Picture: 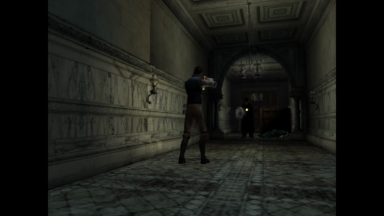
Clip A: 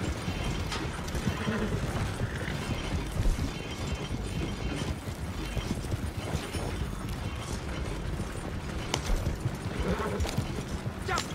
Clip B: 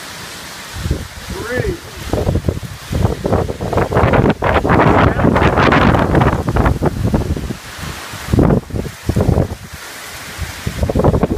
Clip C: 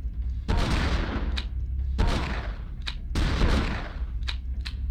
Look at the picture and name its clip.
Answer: C